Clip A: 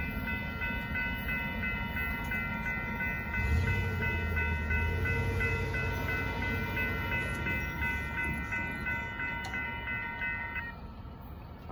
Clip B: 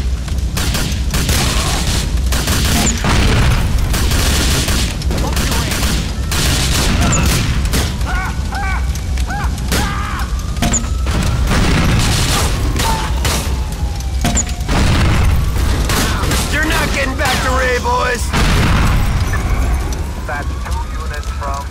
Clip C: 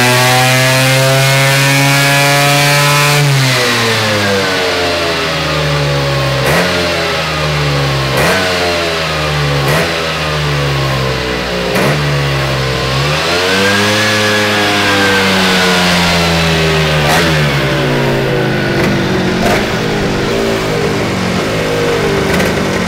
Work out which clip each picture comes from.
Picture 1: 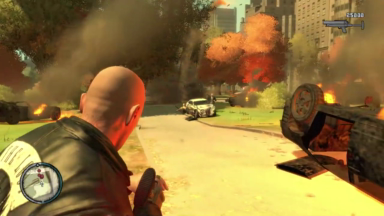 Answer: B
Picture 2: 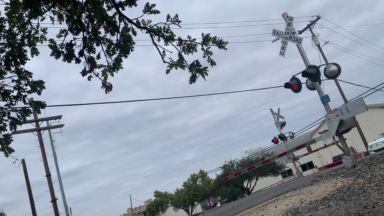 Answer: A